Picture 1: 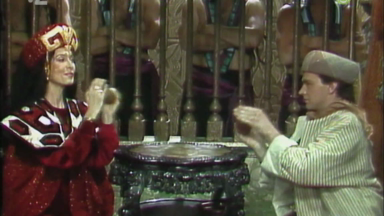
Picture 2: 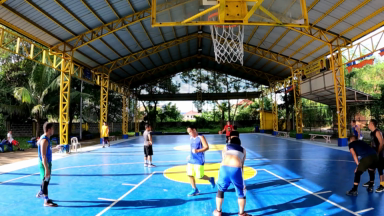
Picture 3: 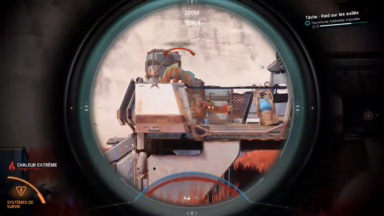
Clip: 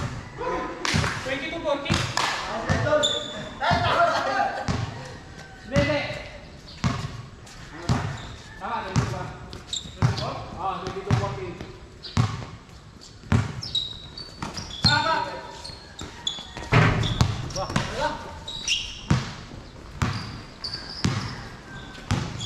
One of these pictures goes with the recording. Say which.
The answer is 2